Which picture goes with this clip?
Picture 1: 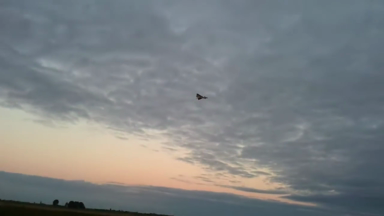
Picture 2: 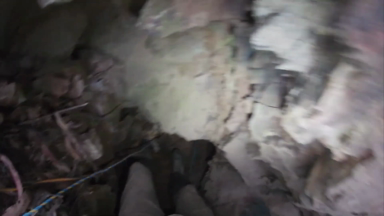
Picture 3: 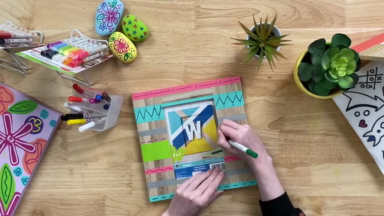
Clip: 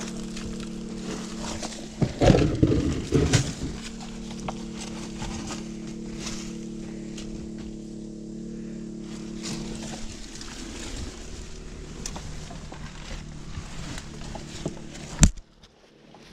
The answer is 2